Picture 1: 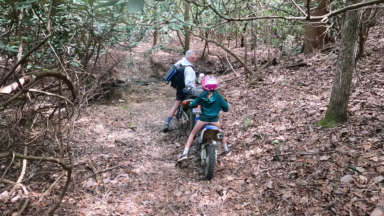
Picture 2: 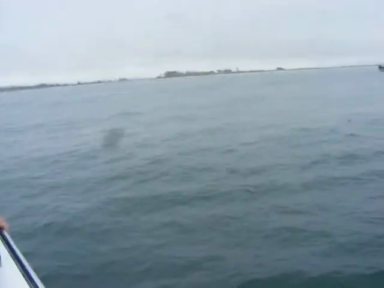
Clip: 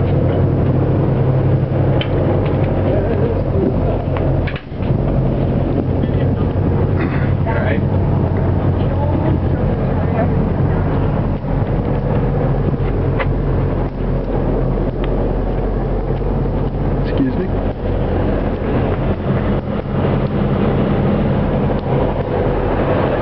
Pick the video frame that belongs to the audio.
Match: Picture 2